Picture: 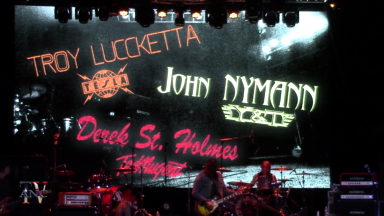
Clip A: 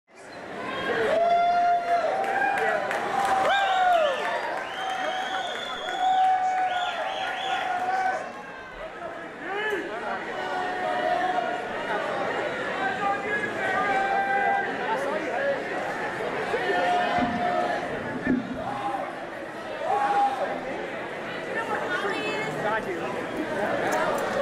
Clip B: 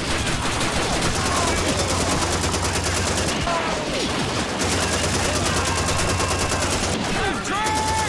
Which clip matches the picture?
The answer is A